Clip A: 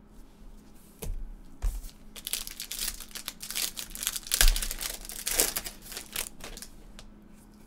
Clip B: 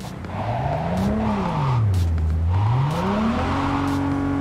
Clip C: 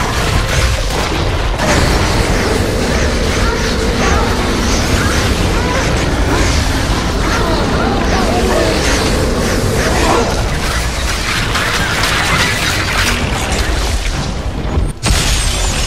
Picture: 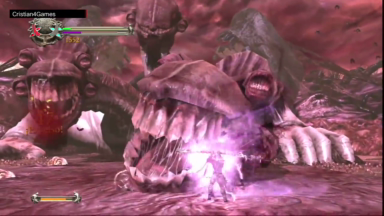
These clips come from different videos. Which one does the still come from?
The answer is C